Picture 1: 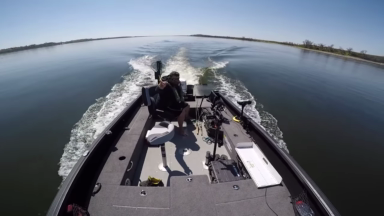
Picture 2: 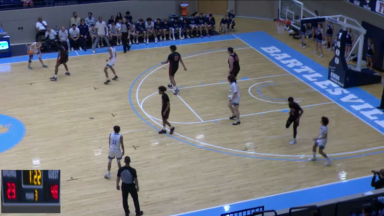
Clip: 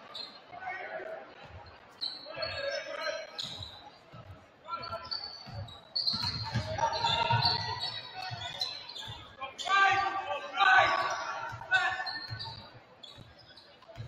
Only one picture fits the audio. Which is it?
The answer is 2